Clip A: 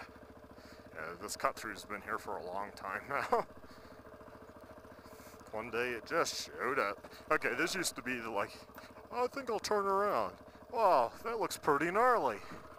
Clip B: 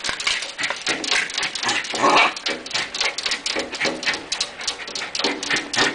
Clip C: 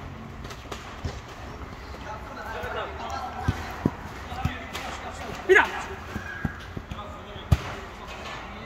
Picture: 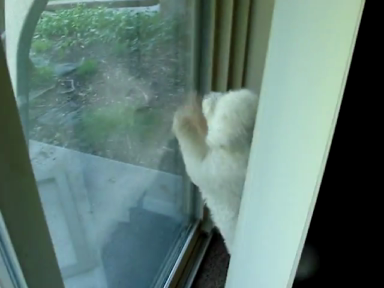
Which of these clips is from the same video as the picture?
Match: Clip B